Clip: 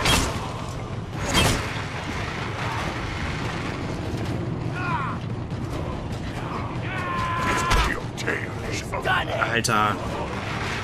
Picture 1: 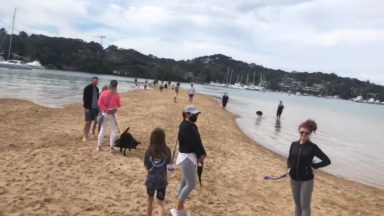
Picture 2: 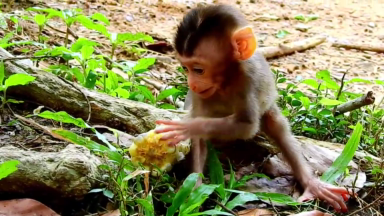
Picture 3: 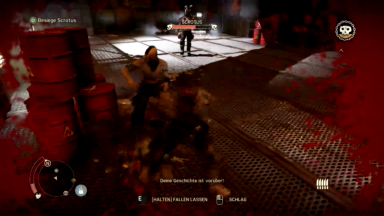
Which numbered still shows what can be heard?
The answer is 3